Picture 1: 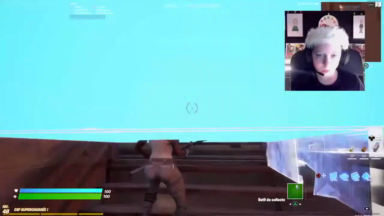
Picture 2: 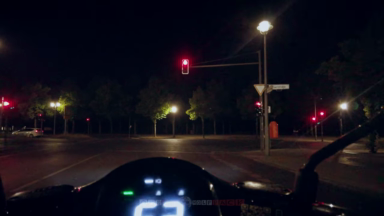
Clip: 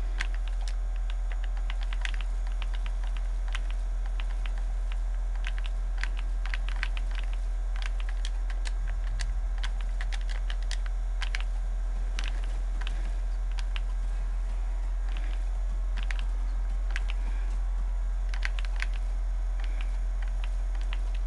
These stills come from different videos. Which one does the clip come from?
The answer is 1